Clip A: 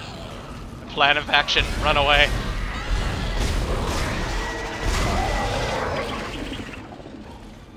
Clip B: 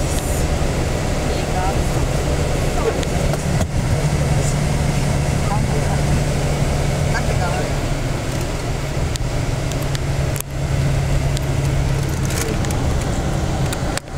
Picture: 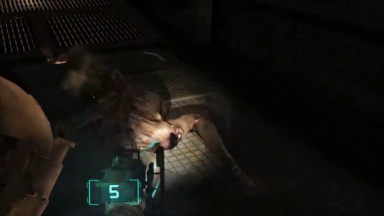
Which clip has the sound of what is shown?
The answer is A